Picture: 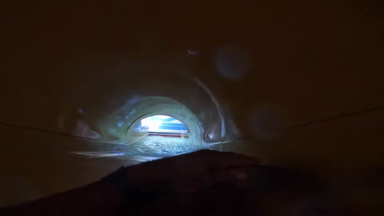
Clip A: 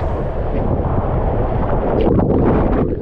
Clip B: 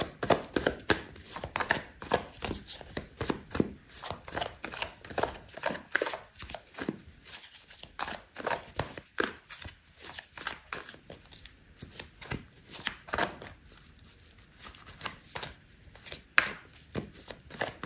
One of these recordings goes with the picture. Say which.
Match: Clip A